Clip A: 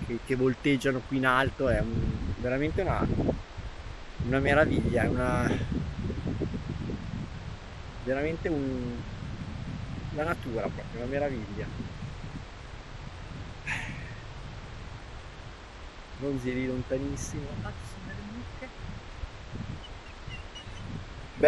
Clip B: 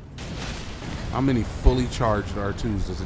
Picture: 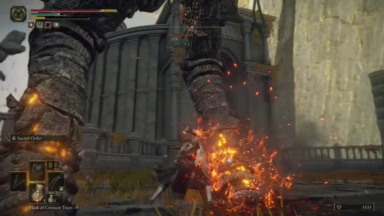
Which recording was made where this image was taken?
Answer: B